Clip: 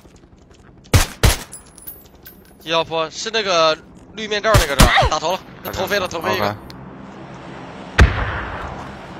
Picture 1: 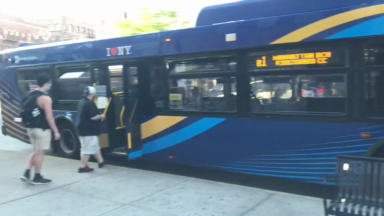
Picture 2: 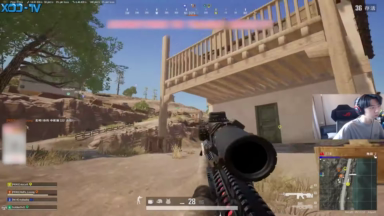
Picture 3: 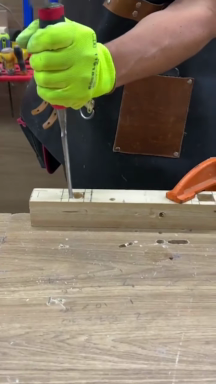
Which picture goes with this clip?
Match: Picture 2